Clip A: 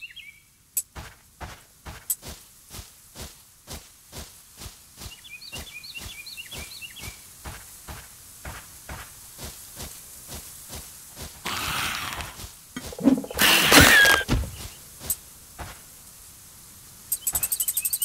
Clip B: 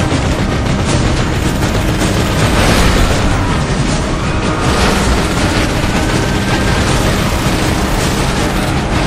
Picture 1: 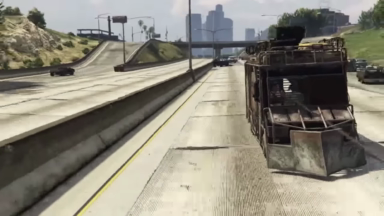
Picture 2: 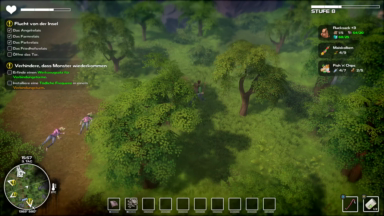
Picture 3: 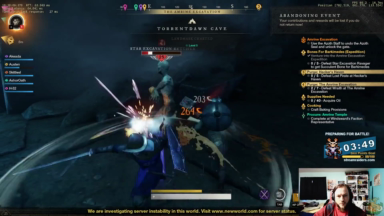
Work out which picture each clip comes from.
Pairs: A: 2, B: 1